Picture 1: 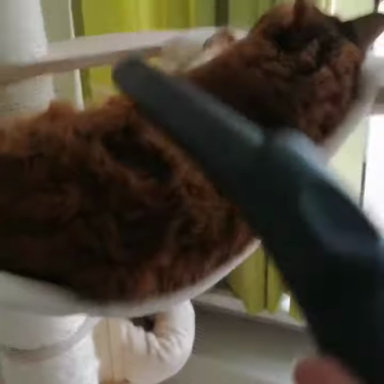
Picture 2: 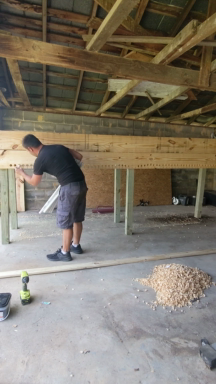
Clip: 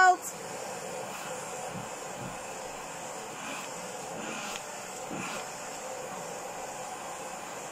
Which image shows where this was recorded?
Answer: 1